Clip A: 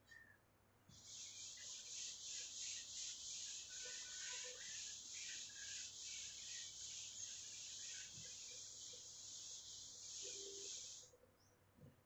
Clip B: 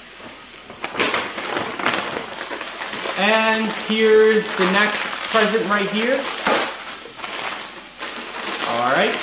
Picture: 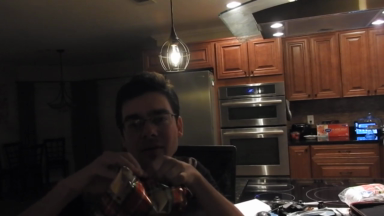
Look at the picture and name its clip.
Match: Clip B